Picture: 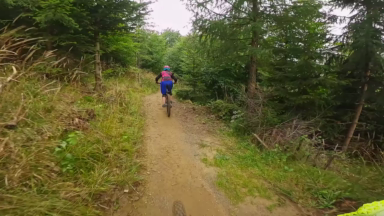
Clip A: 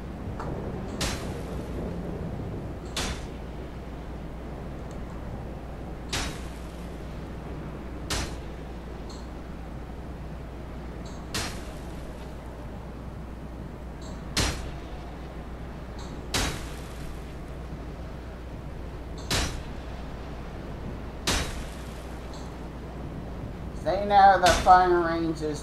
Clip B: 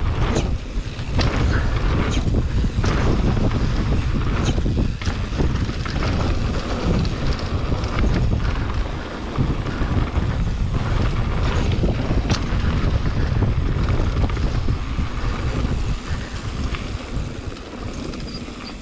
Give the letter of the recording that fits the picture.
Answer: B